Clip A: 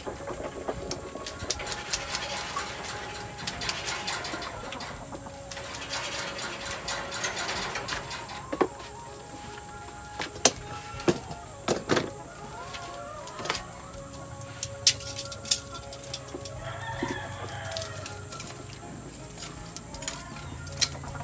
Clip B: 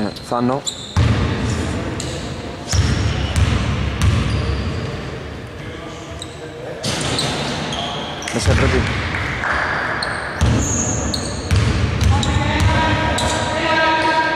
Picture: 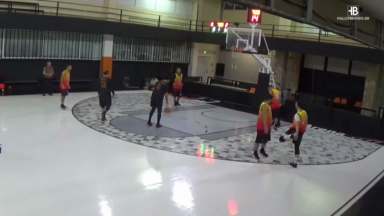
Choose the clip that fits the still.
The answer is B